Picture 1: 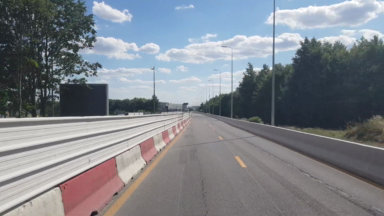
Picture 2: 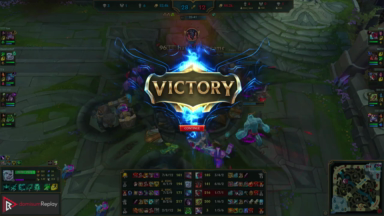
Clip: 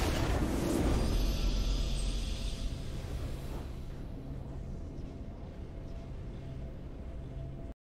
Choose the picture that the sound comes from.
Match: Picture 2